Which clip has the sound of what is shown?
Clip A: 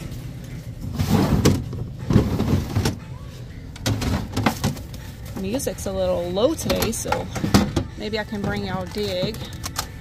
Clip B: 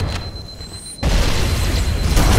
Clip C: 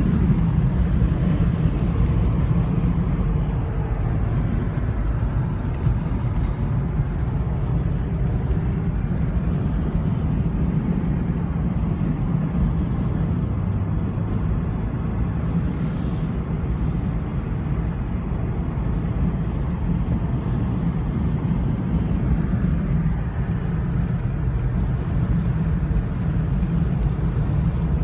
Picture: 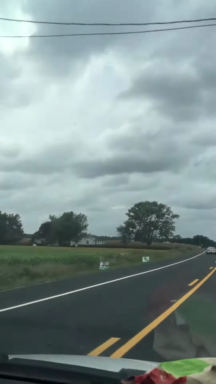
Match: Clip C